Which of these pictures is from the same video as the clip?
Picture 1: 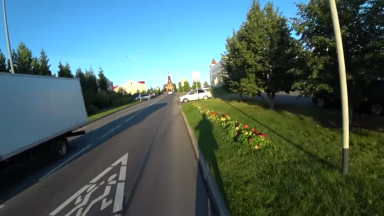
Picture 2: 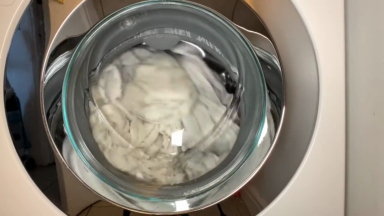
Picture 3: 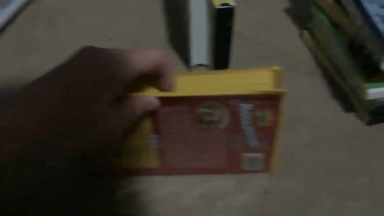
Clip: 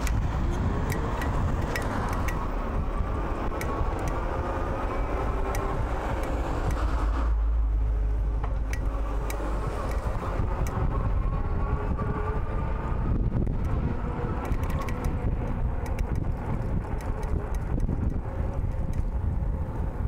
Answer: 1